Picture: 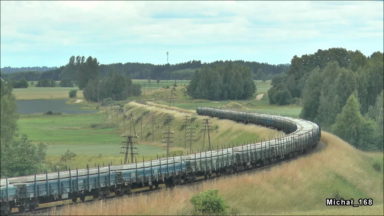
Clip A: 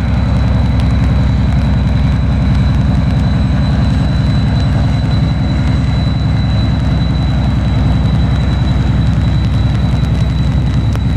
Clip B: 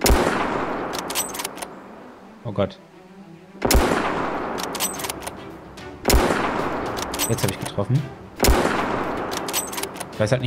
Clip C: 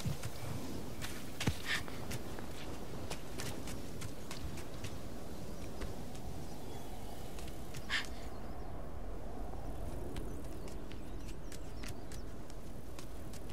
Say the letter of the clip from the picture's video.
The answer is A